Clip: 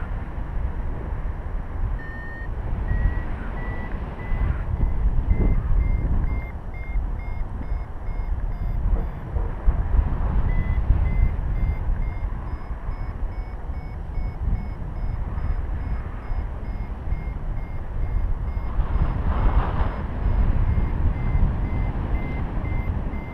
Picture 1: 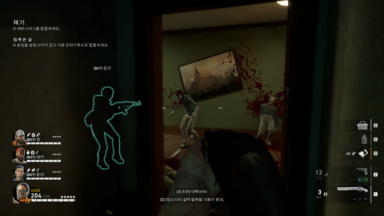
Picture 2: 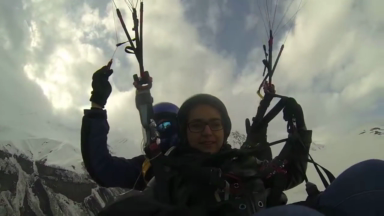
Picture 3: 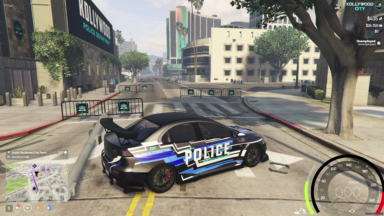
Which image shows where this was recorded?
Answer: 2